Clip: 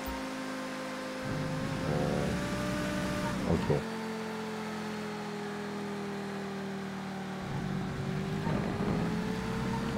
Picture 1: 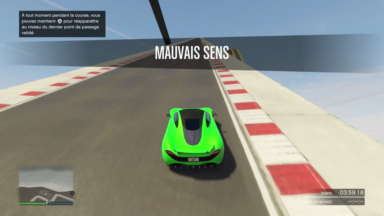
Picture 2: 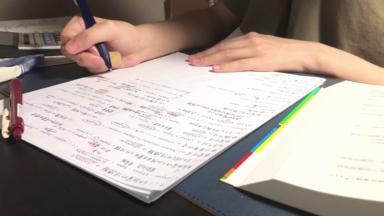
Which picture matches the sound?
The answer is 1